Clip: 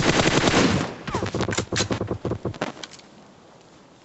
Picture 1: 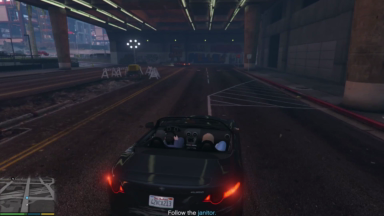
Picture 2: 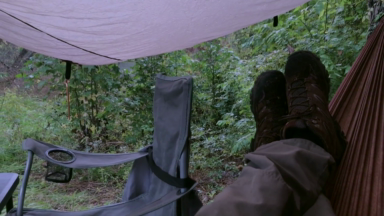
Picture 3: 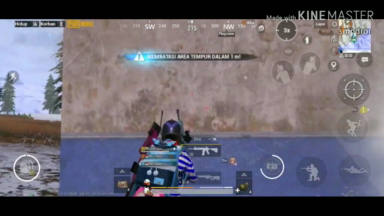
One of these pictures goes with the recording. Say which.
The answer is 3